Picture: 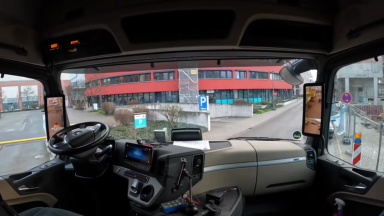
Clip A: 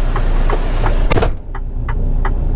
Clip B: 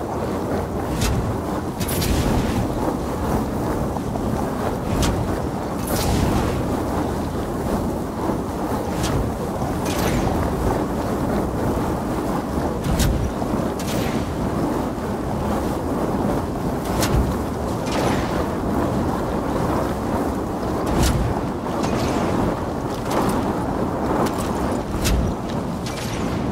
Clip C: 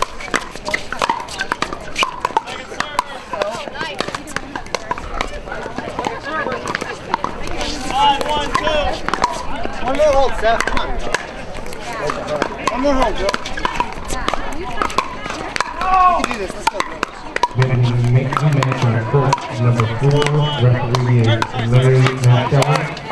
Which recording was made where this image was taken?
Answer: A